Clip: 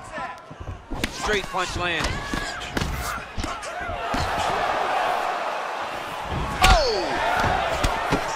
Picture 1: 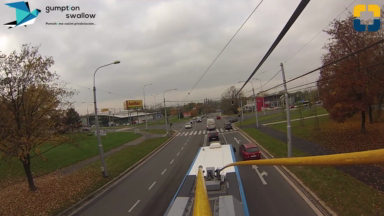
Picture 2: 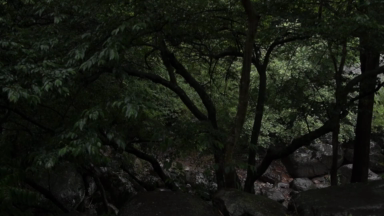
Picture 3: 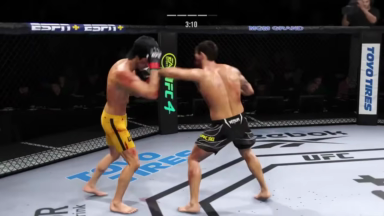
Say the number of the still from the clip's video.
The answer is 3